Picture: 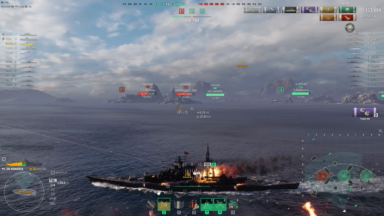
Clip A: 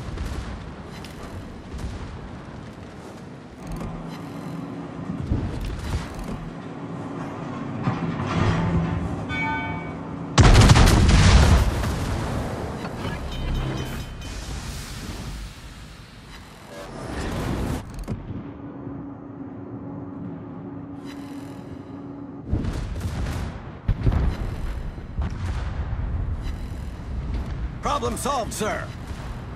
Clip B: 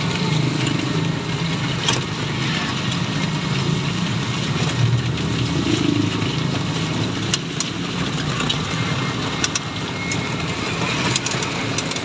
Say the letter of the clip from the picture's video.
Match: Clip A